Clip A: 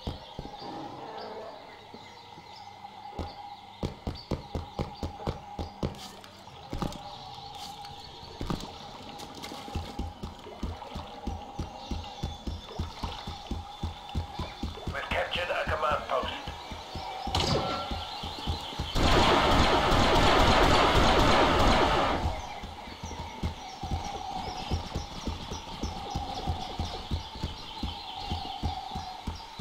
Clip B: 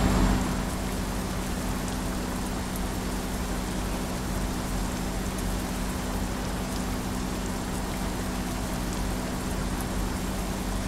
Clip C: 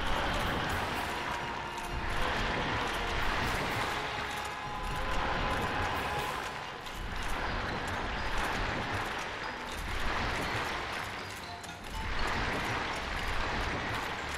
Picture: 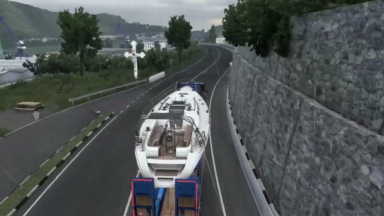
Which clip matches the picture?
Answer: B